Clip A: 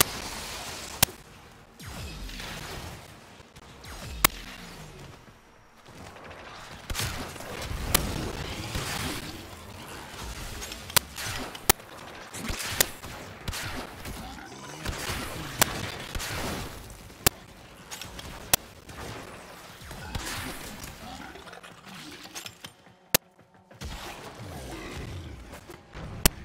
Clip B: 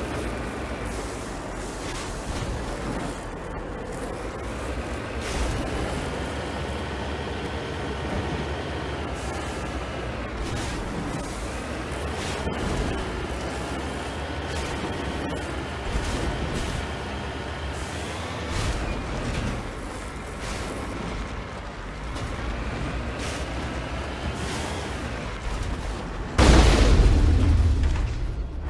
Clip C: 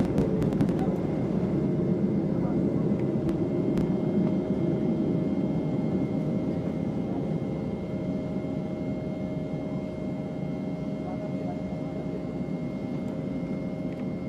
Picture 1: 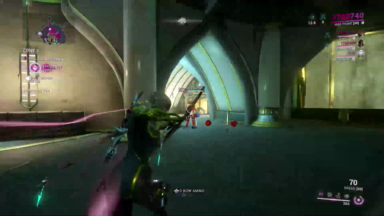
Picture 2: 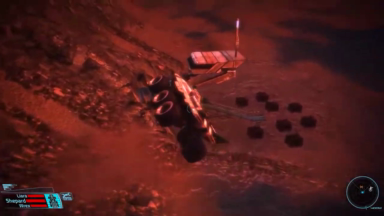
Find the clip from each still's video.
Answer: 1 A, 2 B